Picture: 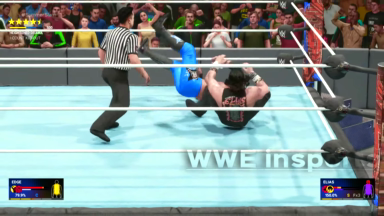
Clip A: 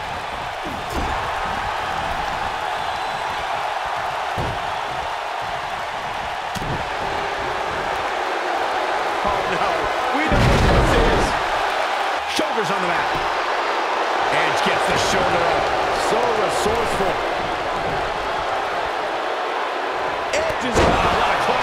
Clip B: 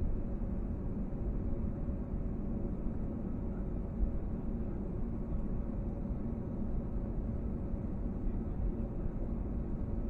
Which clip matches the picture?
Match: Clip A